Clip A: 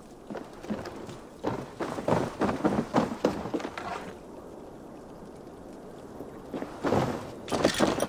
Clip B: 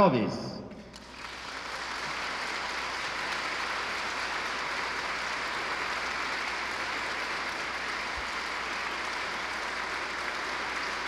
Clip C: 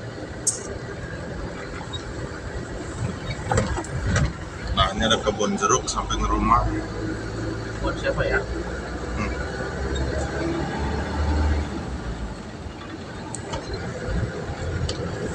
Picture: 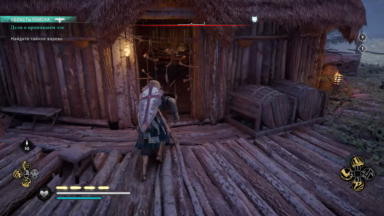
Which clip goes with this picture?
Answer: A